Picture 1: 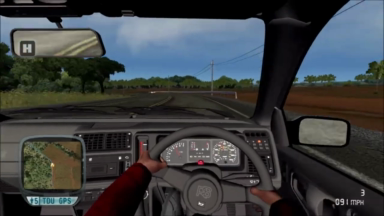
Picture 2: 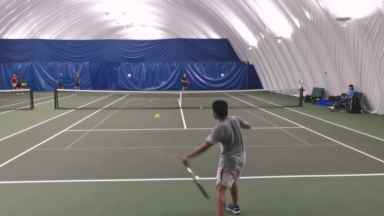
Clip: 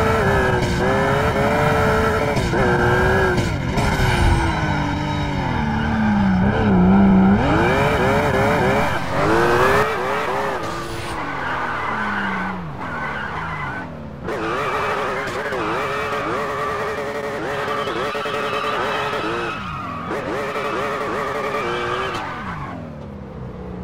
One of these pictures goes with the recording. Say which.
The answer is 1